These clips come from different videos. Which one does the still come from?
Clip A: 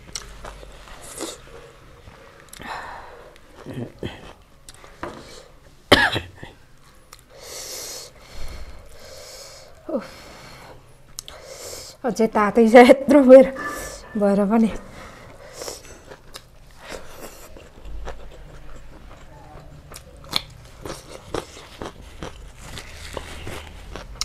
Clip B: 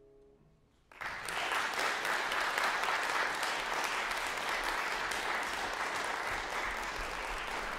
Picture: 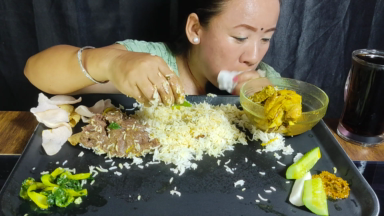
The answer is A